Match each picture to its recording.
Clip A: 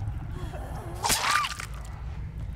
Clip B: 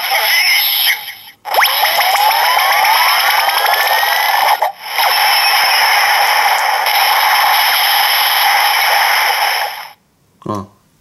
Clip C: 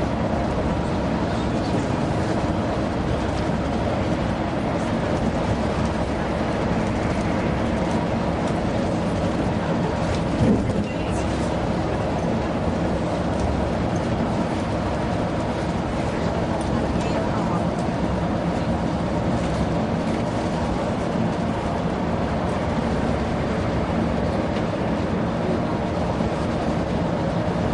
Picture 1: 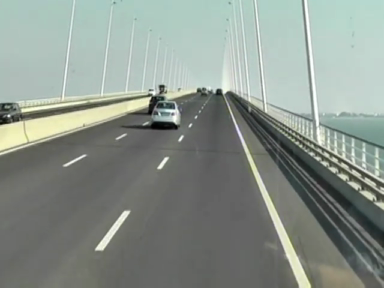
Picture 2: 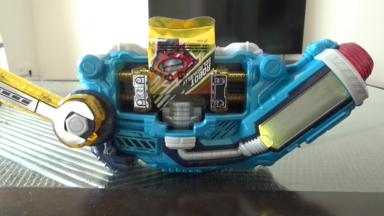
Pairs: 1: C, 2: B